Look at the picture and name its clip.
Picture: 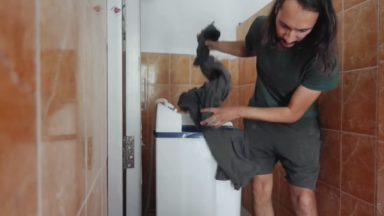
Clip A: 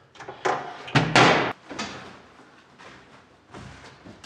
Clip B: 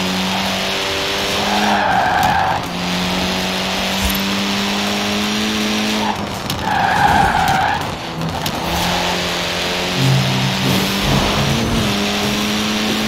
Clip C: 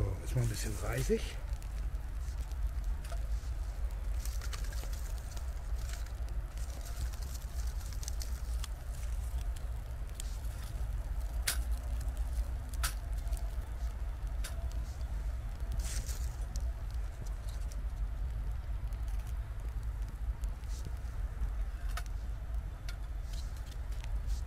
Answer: A